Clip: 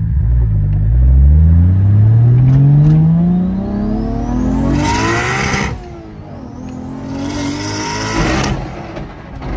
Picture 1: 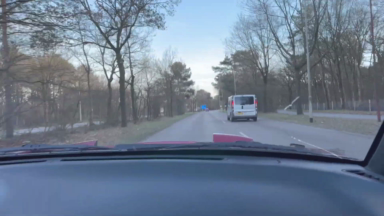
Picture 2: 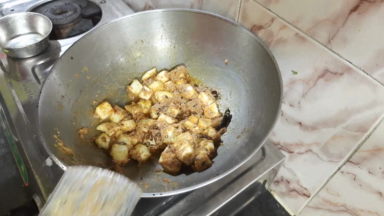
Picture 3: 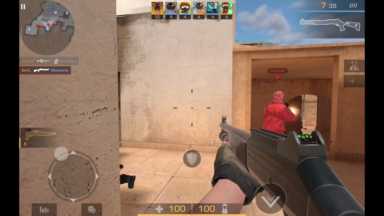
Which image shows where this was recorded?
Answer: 1